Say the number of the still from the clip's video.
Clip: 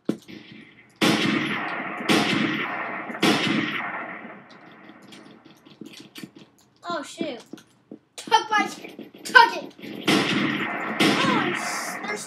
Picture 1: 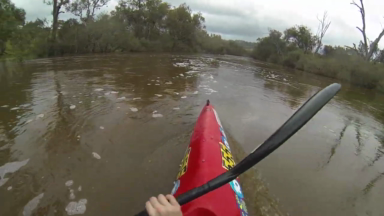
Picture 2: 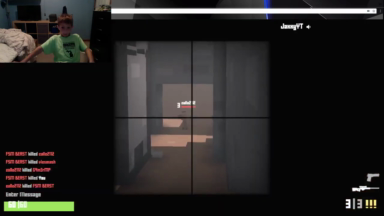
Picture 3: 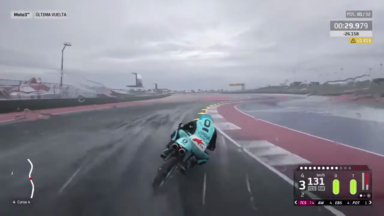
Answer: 2